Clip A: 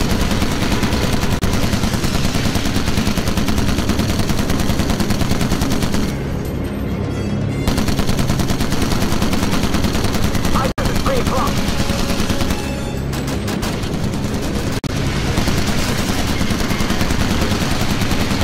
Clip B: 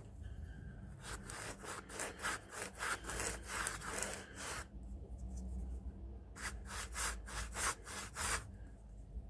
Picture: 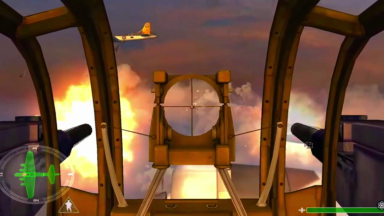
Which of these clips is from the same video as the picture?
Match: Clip A